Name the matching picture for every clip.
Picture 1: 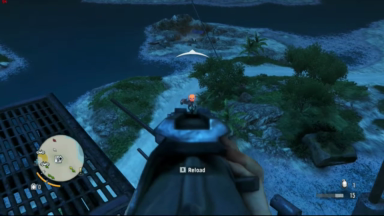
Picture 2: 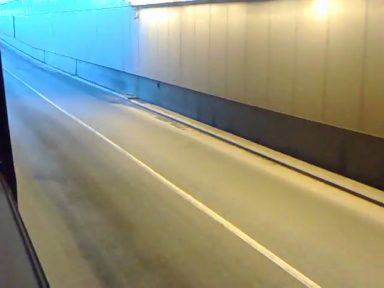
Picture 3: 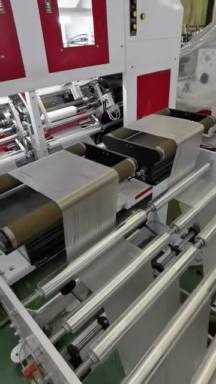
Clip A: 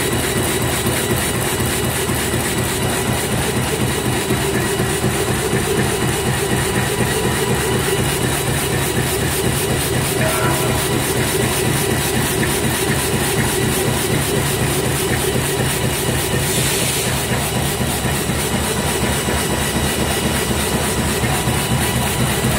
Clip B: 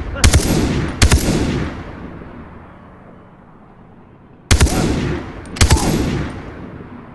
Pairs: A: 3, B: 1